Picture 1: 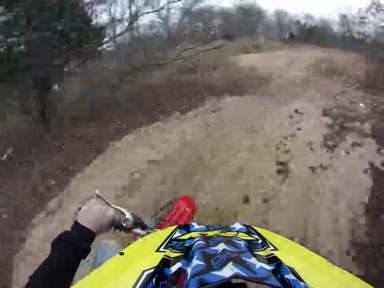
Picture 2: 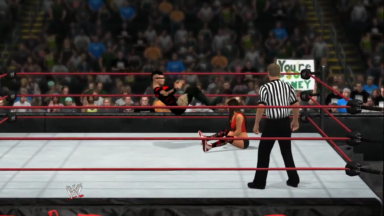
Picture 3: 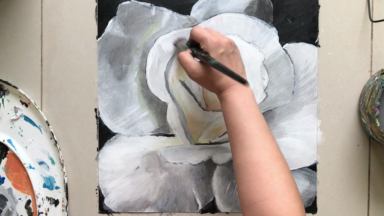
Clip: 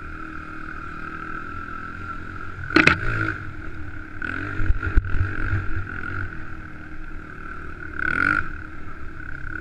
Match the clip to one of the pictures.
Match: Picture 1